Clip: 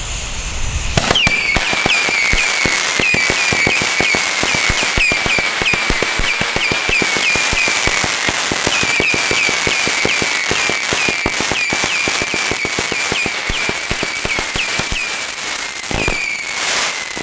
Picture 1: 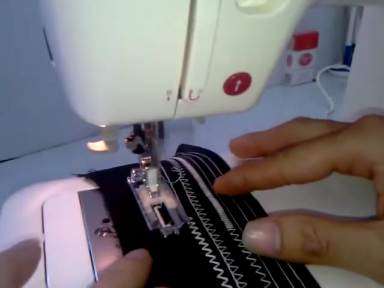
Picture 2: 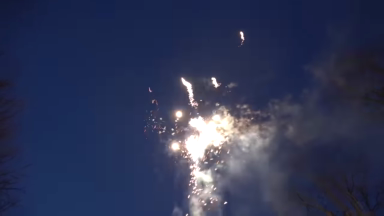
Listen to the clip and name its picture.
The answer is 2